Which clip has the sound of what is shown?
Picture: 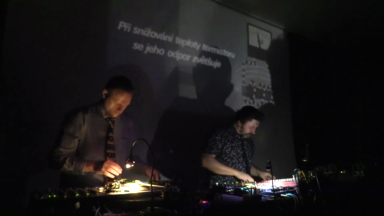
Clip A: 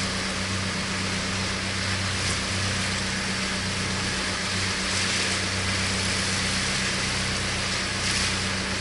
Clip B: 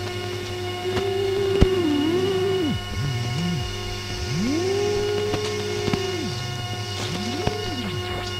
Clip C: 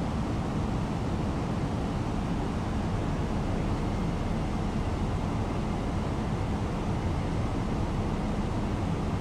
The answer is B